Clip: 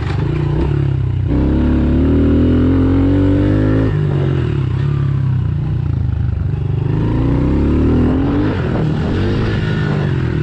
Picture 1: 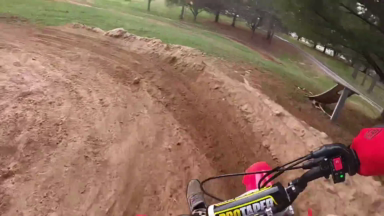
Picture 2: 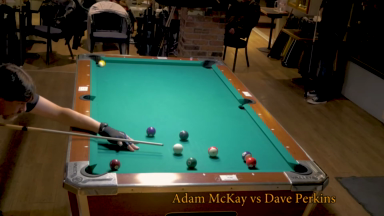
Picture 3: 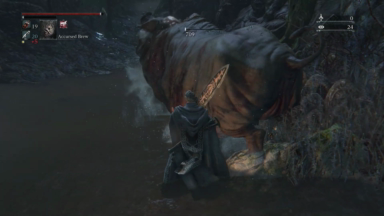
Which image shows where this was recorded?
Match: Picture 1